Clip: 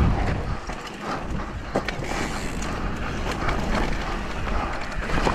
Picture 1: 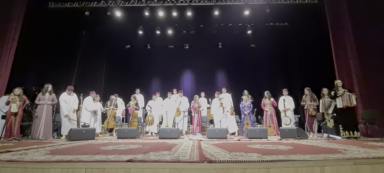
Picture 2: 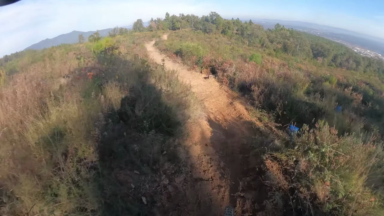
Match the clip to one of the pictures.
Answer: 2